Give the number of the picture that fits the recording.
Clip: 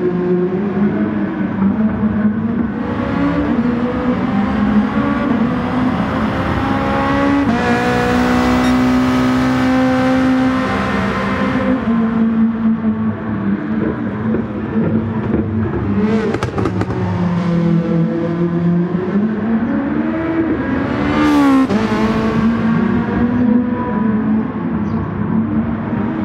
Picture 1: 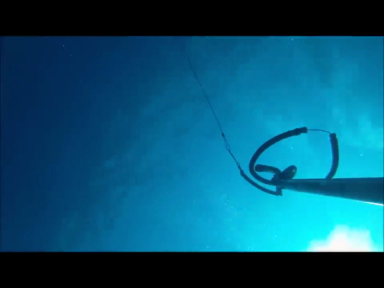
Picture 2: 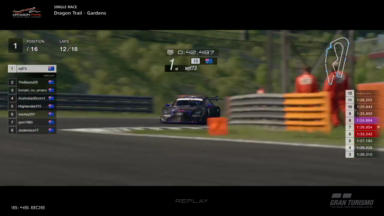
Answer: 2